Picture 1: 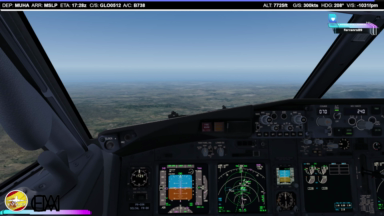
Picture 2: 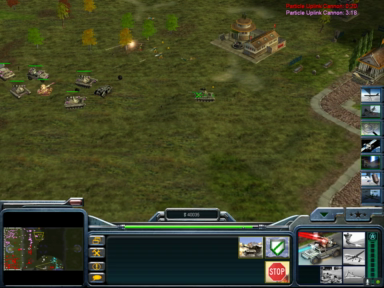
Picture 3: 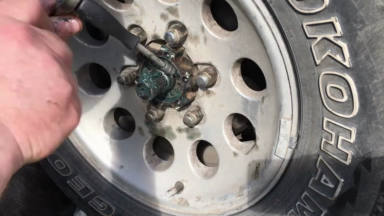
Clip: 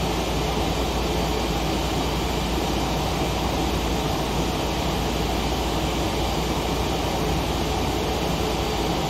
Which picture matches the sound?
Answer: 1